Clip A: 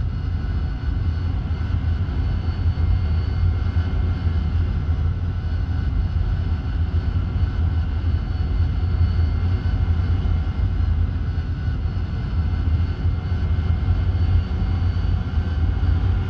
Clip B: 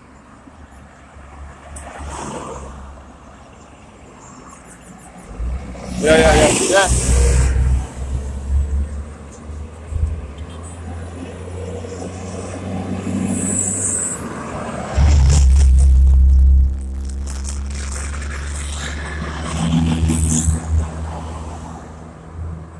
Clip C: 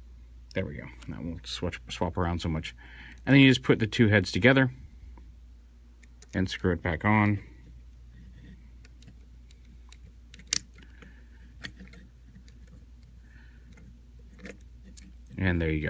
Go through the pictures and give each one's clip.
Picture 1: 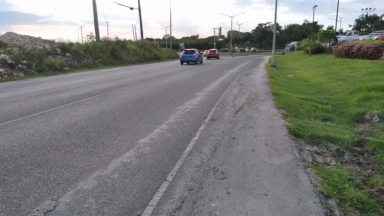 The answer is B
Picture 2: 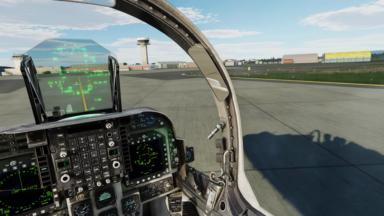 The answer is A